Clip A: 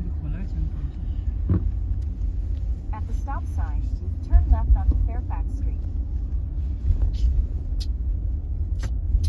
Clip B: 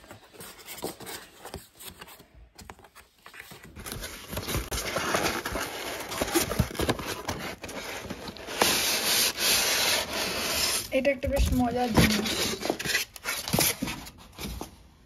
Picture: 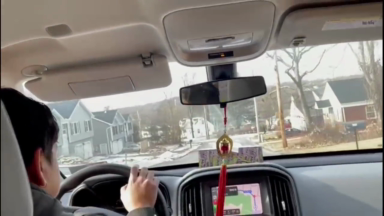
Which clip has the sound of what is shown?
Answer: A